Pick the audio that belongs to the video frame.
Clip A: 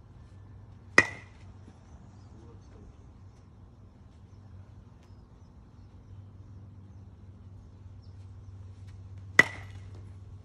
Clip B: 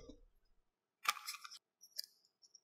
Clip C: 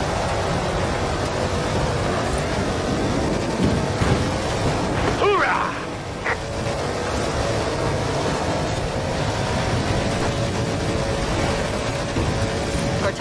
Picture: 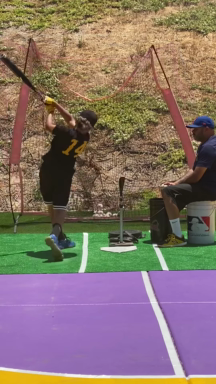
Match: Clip A